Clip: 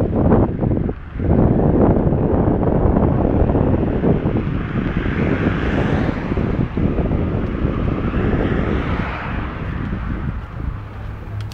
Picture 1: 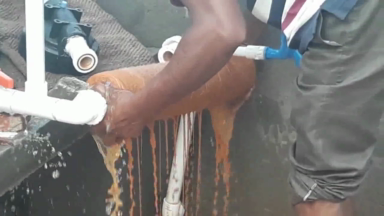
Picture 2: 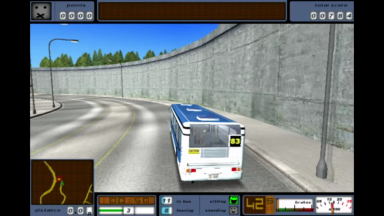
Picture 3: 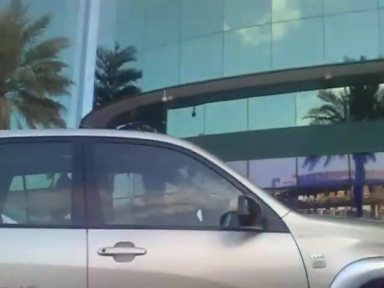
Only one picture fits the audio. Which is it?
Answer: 3